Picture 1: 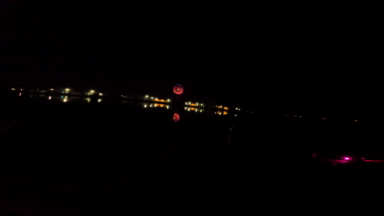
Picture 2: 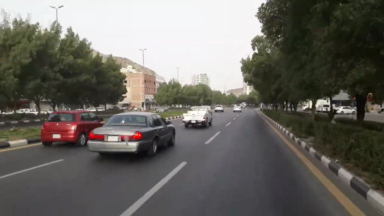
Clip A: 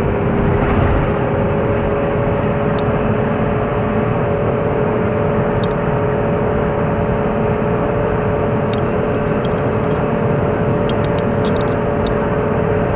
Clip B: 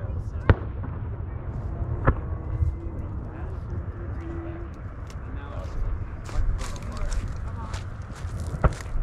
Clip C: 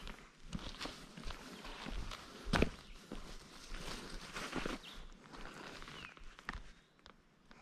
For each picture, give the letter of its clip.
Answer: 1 B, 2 A